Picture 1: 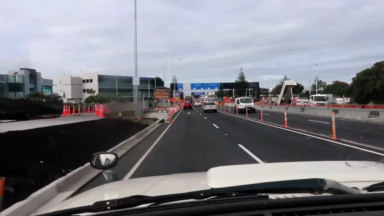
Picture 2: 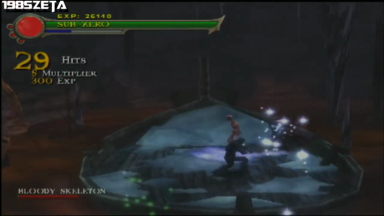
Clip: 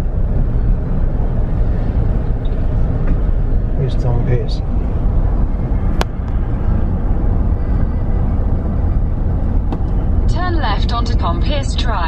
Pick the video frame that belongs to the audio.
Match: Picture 1